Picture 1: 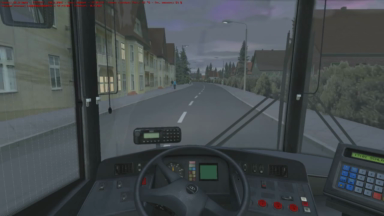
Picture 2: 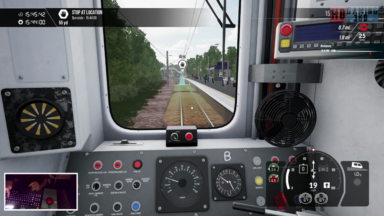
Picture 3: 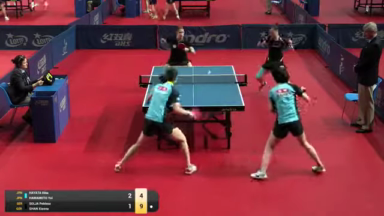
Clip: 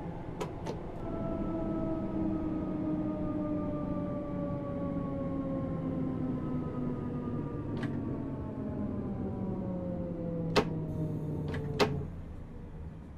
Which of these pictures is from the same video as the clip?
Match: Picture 2